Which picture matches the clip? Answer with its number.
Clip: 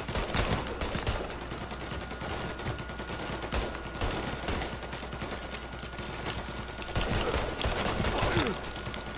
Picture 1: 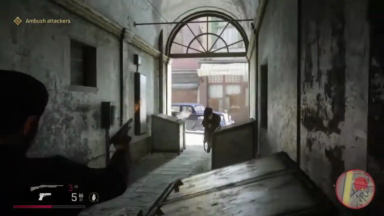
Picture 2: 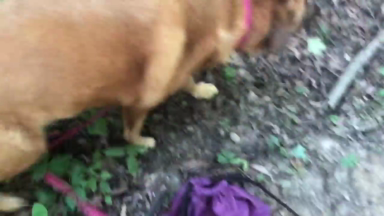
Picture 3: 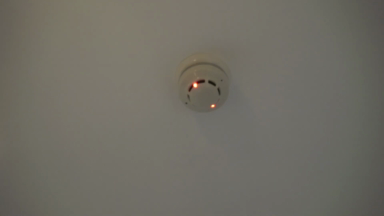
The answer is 1